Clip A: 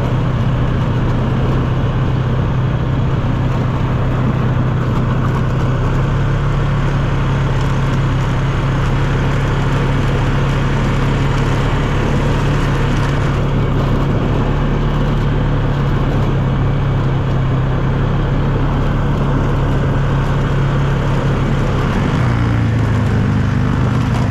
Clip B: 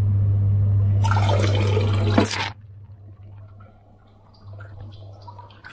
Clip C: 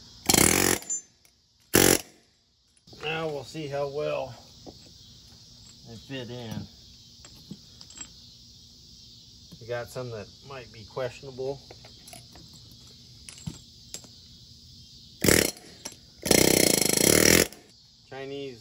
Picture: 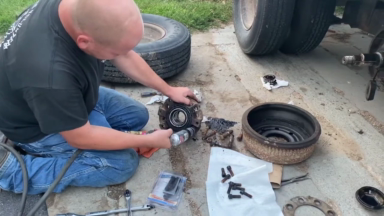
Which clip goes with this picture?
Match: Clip C